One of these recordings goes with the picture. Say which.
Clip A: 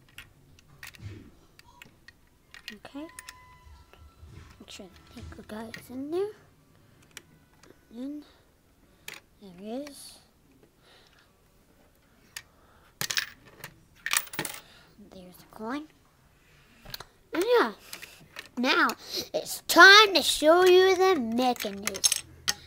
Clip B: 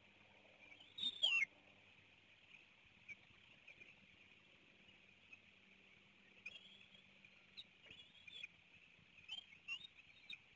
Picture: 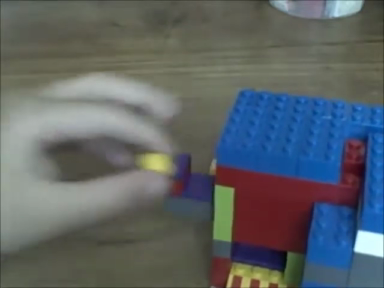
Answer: A